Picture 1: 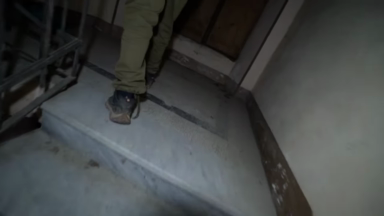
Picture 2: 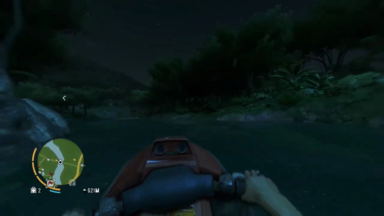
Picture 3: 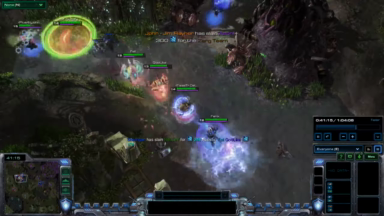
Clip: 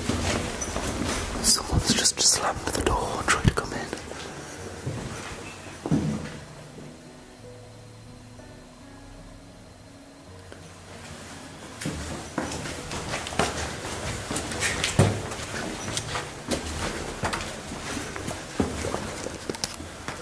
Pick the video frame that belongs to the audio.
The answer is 1